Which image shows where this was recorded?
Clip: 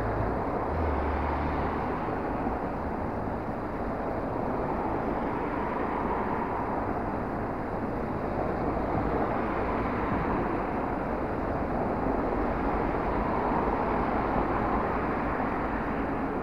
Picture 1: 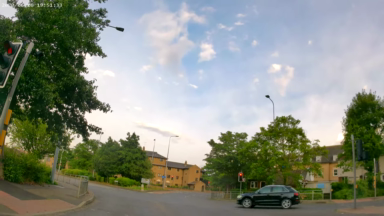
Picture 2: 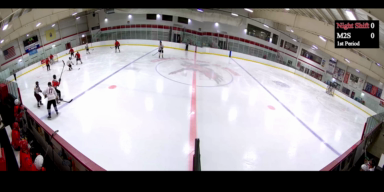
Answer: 1